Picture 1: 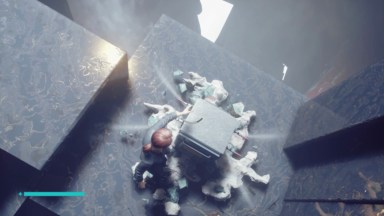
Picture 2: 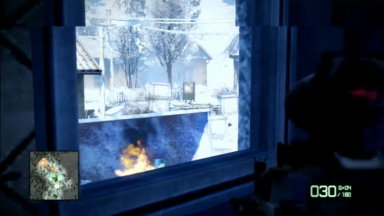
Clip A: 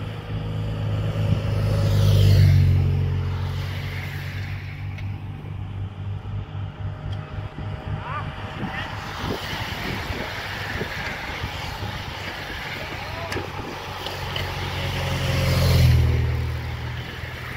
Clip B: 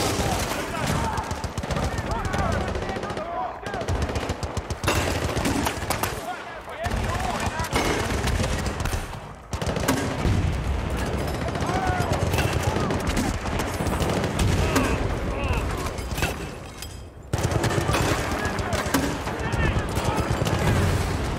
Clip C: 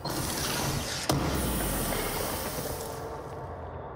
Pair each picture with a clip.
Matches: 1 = C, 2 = B